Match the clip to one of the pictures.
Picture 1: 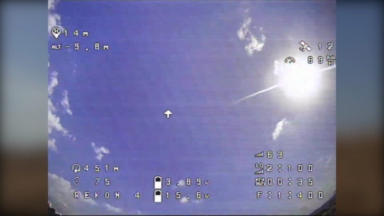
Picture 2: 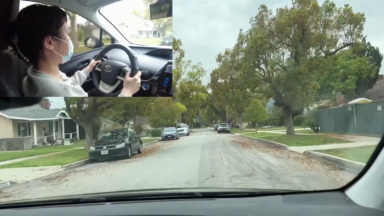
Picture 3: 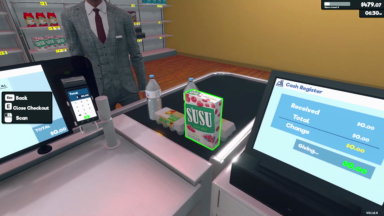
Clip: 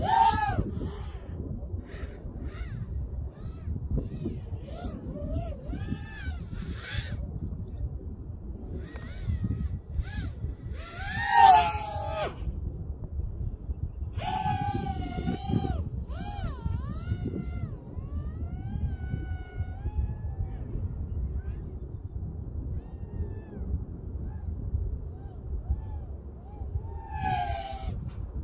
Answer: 1